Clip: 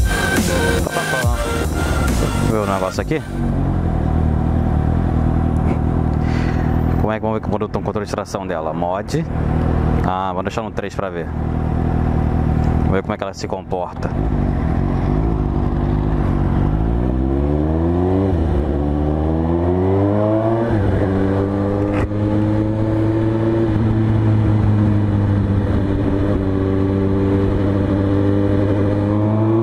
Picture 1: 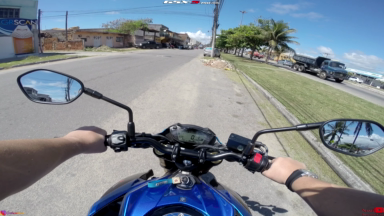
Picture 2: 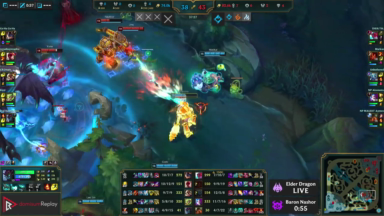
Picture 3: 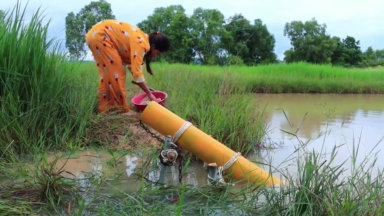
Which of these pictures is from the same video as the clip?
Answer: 1